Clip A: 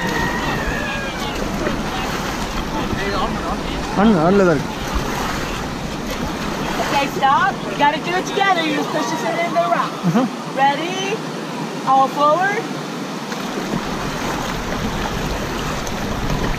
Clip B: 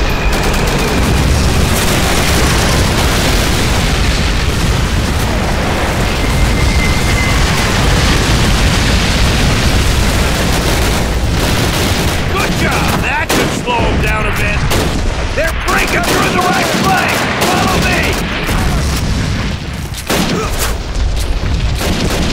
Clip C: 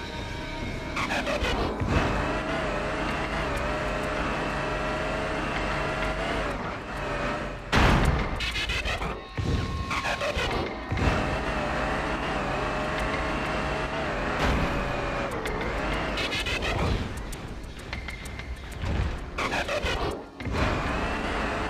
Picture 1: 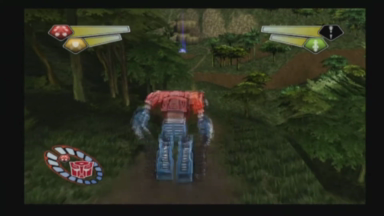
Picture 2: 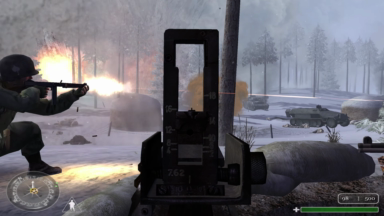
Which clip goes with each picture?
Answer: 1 C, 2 B